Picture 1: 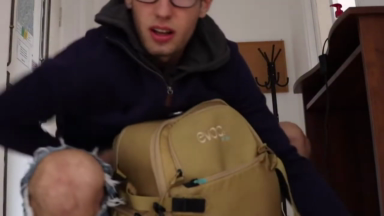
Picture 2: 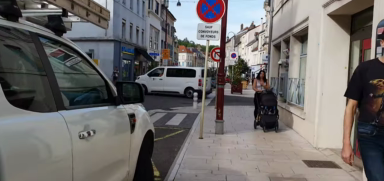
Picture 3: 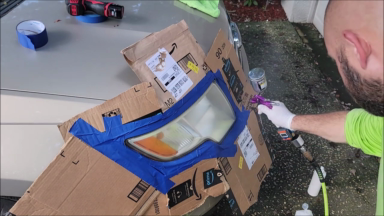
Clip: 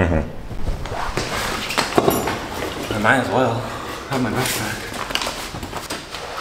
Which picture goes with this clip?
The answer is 1